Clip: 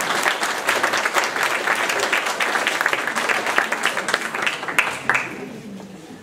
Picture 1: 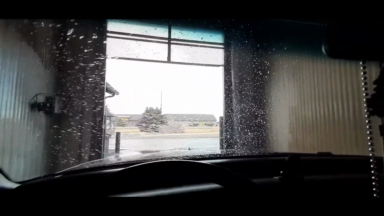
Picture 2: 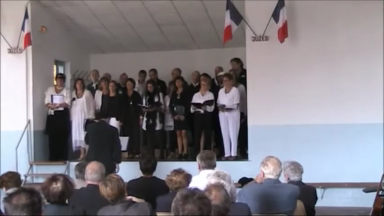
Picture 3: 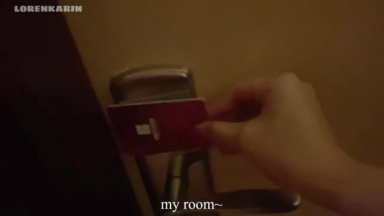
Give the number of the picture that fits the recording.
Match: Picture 2